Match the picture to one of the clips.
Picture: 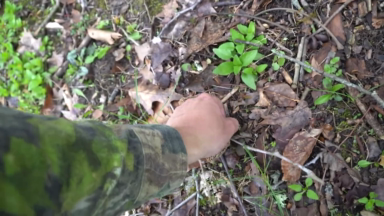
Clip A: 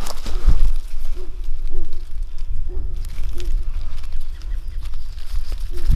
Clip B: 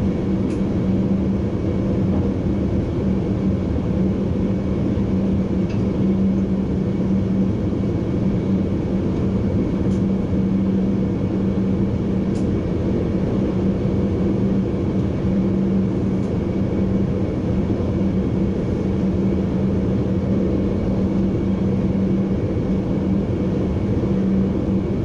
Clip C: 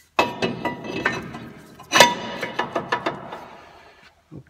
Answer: A